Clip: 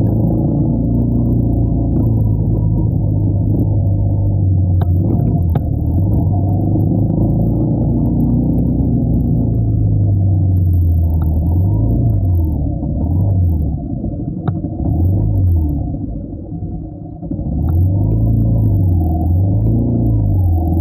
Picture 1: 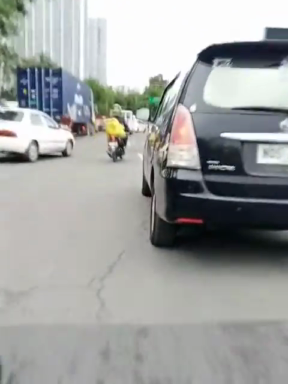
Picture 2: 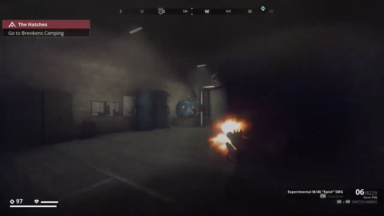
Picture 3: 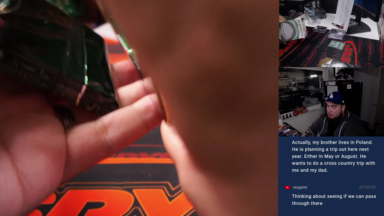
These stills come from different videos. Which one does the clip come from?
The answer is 1